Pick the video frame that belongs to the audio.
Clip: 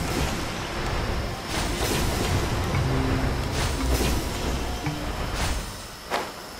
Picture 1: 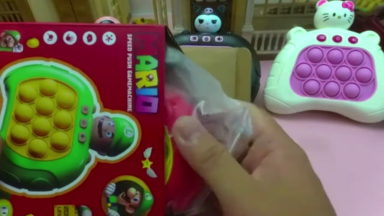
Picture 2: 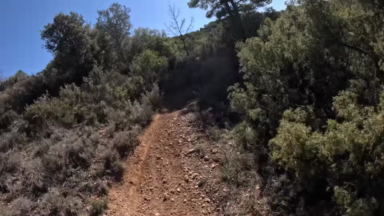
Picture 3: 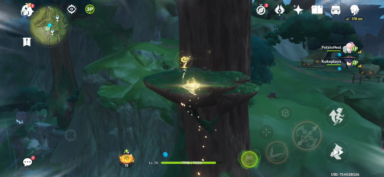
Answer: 3